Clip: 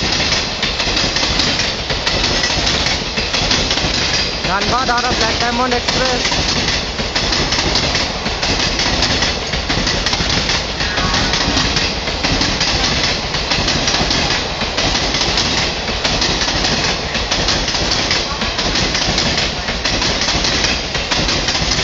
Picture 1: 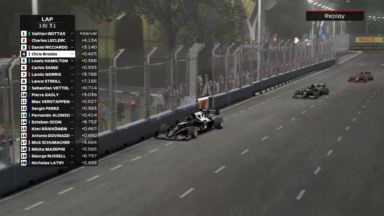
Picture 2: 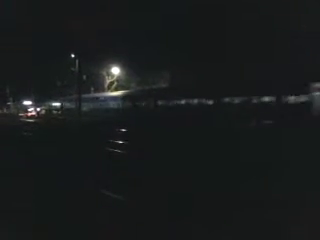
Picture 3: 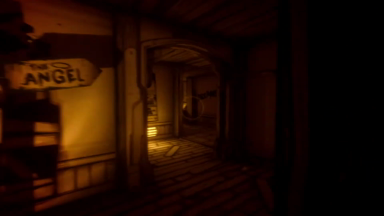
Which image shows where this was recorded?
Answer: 2